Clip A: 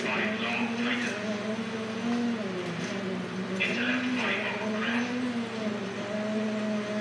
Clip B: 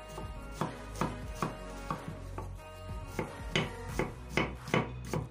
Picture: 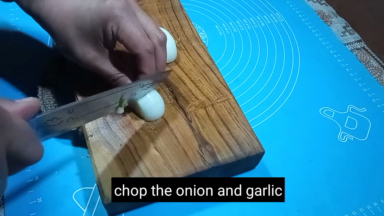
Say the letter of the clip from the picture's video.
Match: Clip B